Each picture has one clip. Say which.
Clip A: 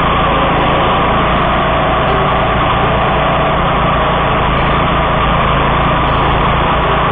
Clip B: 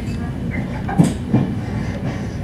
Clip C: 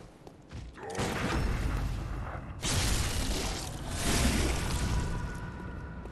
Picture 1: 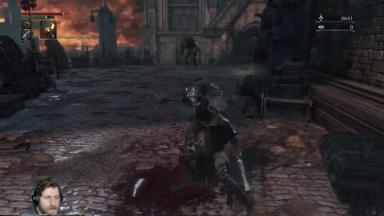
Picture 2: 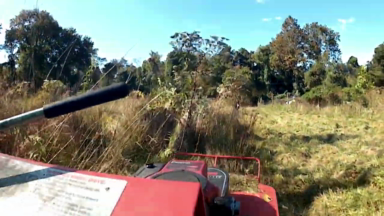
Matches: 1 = C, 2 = A